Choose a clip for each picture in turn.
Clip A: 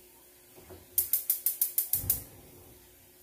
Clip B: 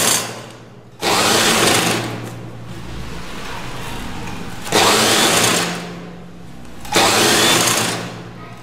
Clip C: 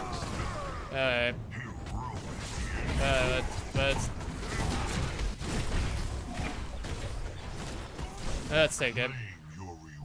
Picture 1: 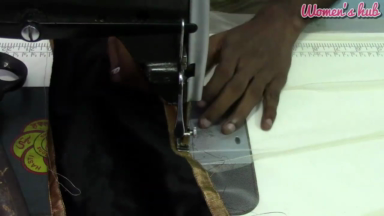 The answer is B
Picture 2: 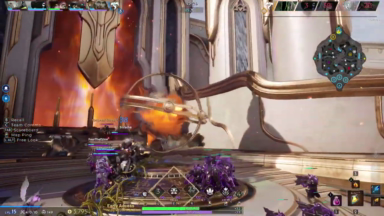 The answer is C